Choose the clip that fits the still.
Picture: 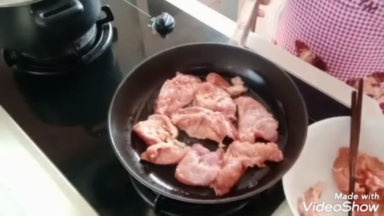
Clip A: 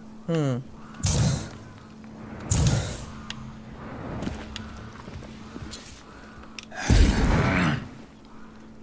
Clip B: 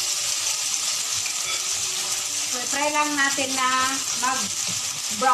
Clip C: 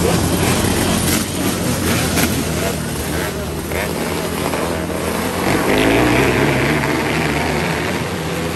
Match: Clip B